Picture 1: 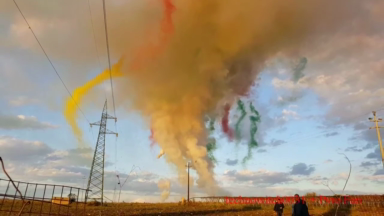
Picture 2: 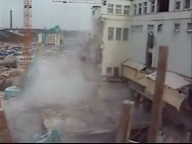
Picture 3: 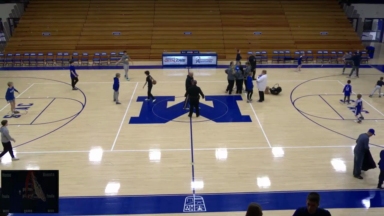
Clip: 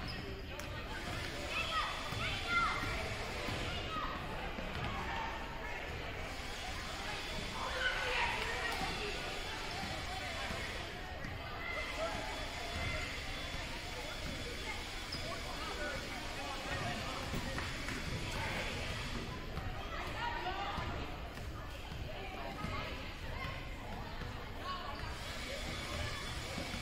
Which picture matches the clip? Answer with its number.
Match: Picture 3